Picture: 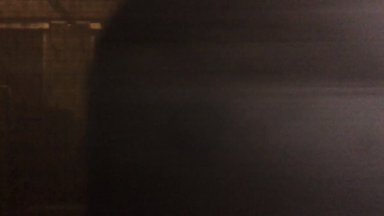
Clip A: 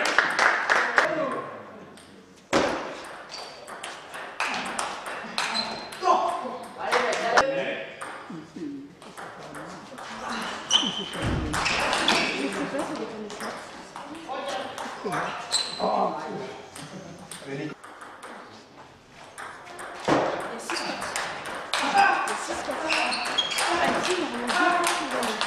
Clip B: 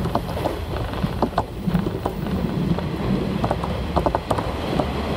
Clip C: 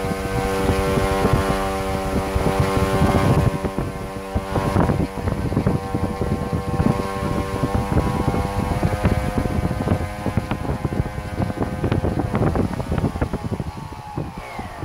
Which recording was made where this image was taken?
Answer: B